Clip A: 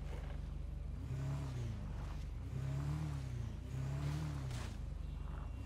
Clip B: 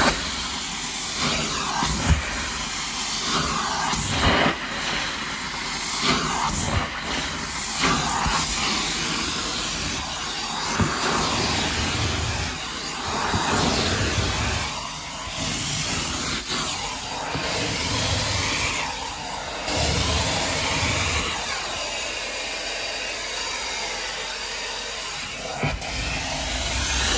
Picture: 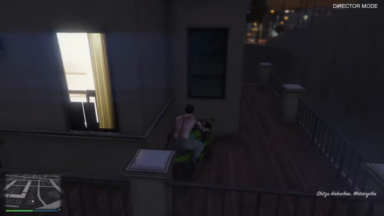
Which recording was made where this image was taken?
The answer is A